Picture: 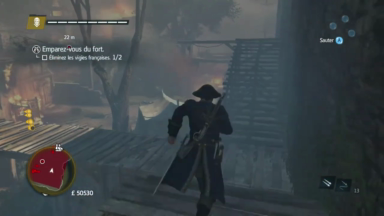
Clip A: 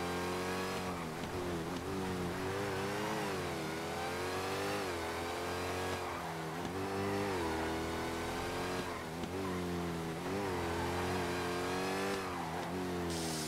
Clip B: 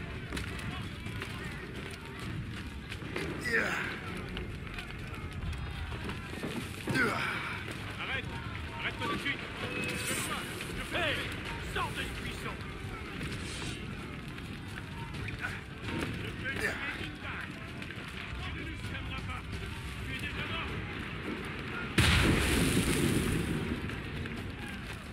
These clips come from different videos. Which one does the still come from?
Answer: B